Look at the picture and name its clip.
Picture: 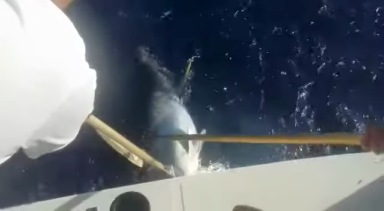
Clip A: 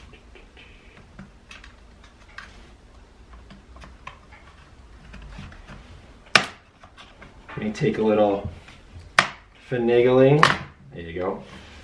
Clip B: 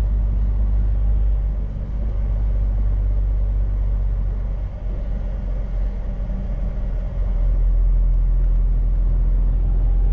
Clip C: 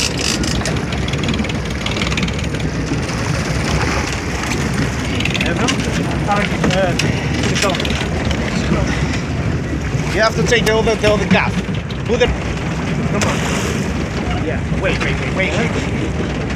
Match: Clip C